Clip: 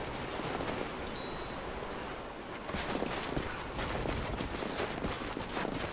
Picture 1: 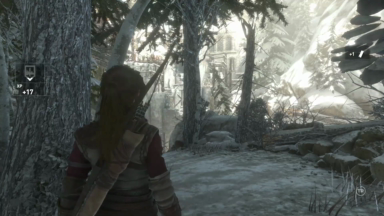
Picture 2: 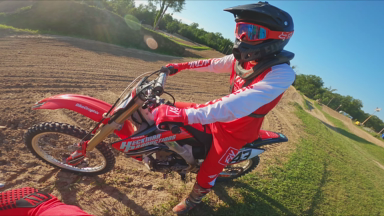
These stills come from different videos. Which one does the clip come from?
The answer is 1